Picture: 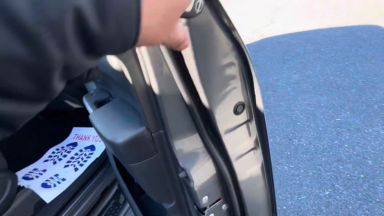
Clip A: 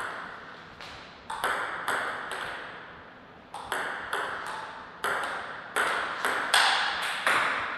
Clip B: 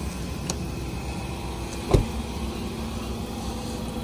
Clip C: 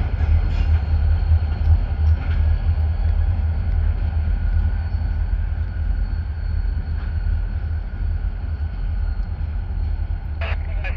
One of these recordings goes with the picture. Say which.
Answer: B